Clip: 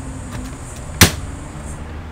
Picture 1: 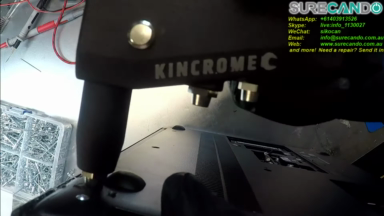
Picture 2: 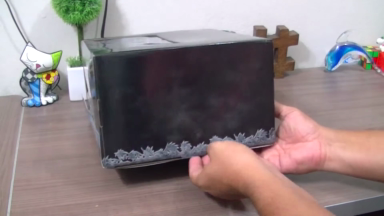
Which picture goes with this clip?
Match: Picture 1